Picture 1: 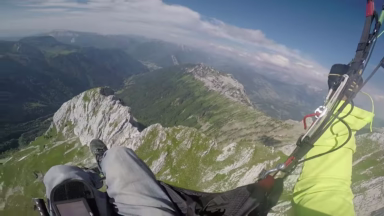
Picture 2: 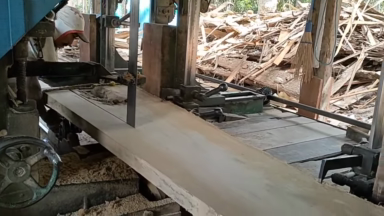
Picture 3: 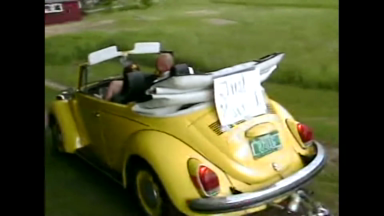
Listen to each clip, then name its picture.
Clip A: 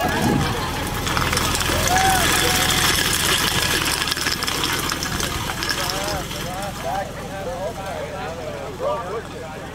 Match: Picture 3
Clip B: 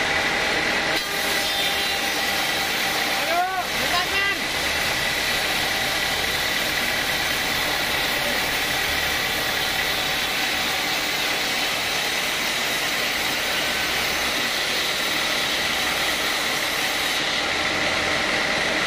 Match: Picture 2